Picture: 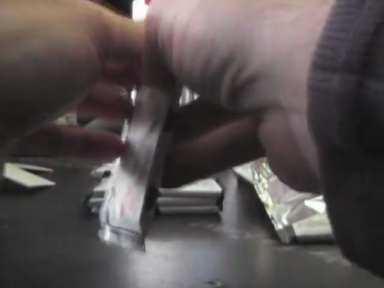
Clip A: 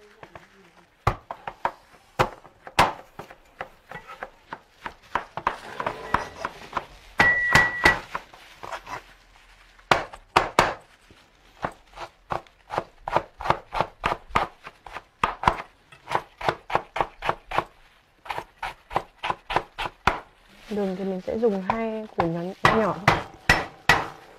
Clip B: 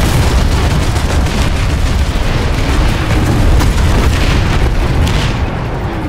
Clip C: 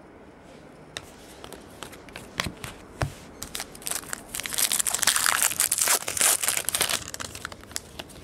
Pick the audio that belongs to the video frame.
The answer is C